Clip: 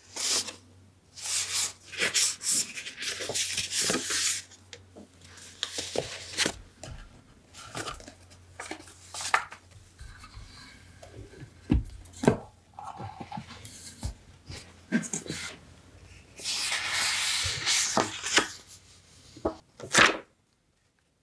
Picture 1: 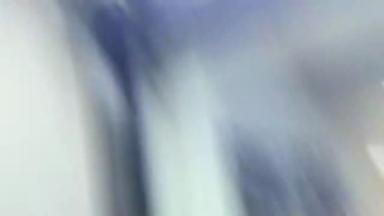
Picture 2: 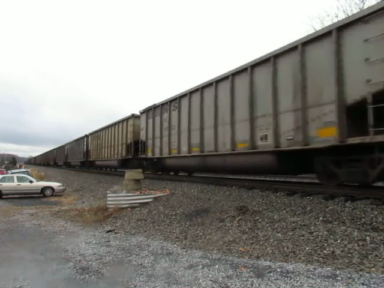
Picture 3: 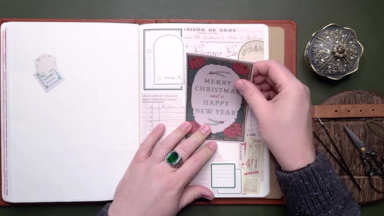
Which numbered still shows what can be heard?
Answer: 3